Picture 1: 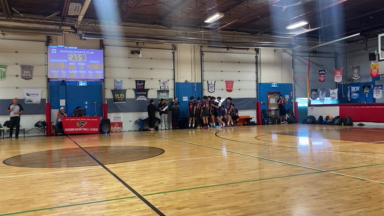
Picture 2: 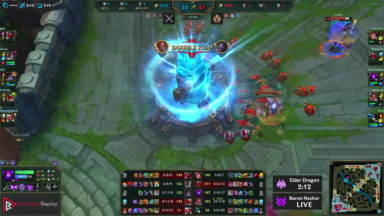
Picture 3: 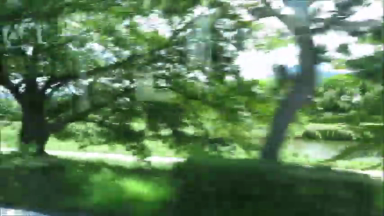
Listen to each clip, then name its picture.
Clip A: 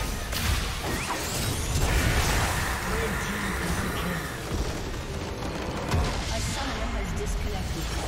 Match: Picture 2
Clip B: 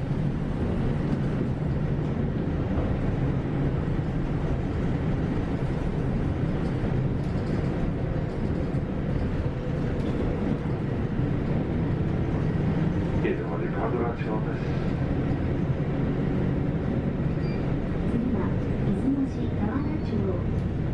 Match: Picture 3